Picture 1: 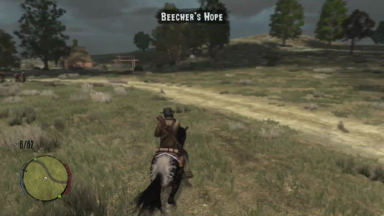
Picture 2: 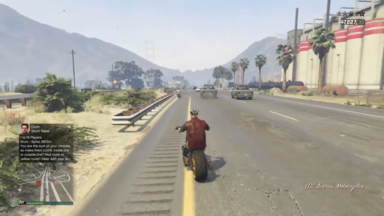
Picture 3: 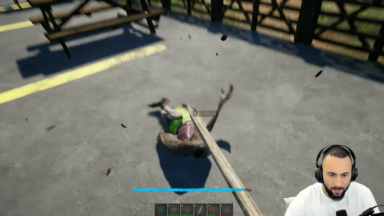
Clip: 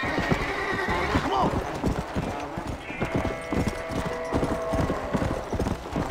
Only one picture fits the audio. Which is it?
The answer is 1